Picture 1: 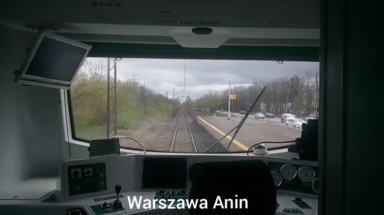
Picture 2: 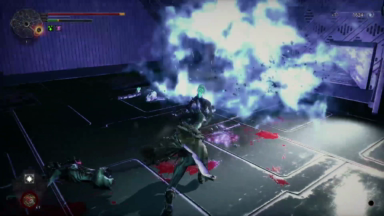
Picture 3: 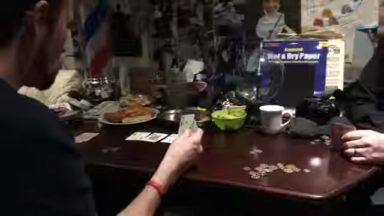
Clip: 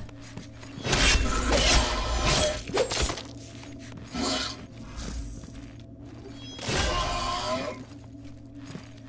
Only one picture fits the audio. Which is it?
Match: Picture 2